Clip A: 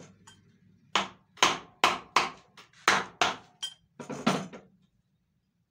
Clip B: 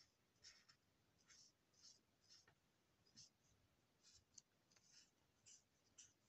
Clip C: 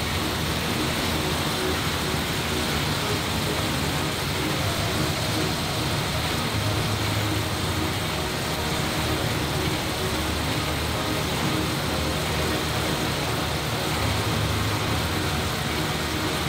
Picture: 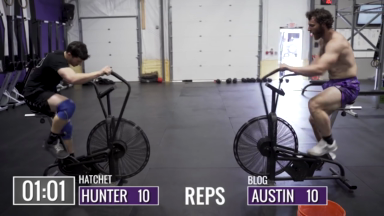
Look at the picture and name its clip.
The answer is C